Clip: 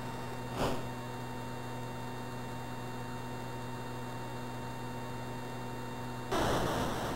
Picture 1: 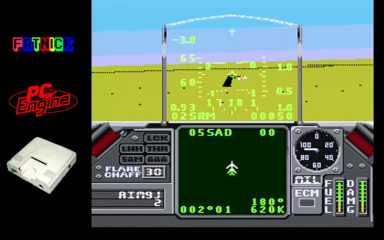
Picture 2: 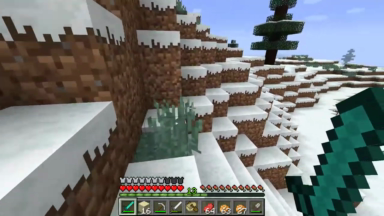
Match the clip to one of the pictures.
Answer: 1